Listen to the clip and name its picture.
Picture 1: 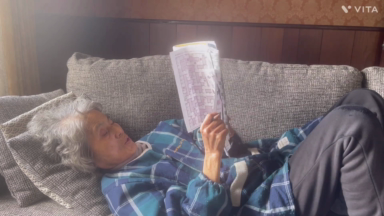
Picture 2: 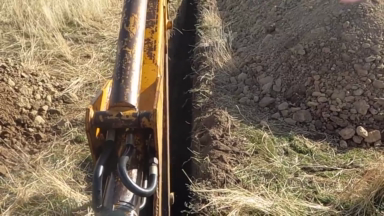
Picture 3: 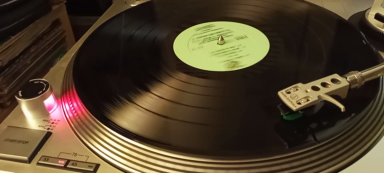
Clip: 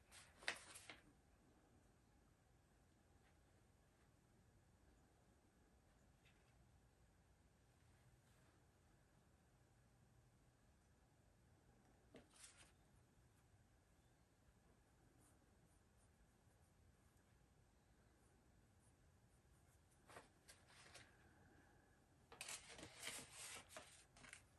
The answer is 1